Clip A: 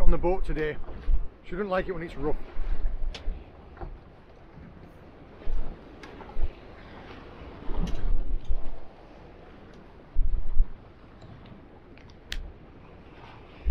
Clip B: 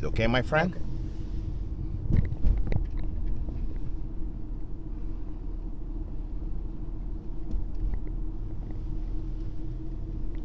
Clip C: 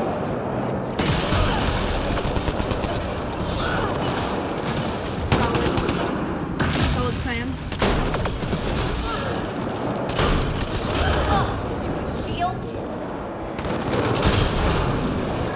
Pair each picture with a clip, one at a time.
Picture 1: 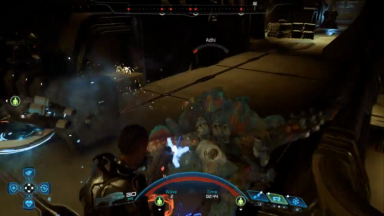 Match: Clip C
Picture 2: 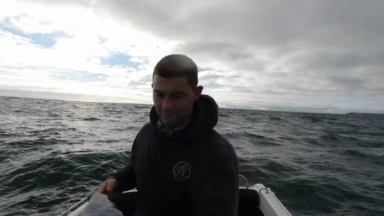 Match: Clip A